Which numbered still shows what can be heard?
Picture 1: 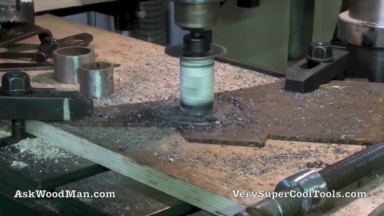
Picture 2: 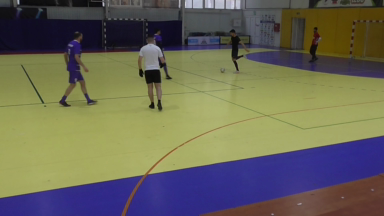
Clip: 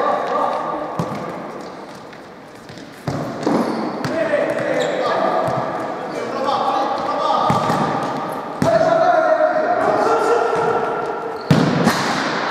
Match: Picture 2